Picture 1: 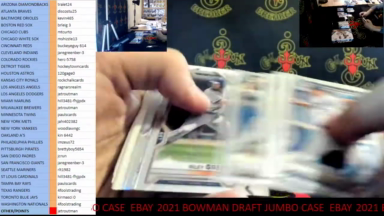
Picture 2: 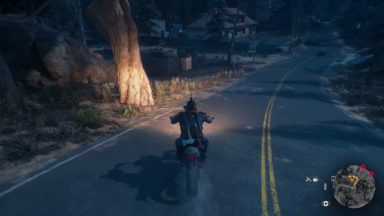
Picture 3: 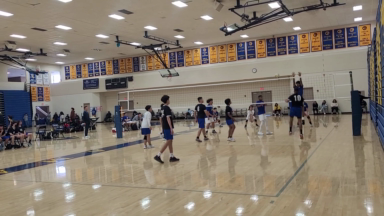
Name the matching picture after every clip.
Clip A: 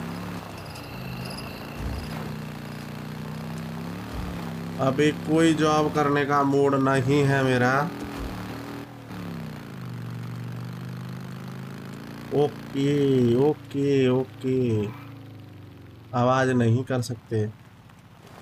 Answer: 2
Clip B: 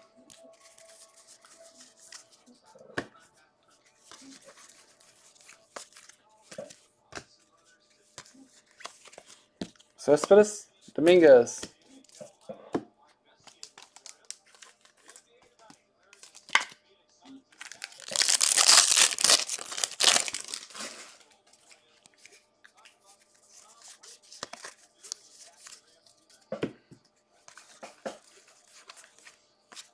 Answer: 1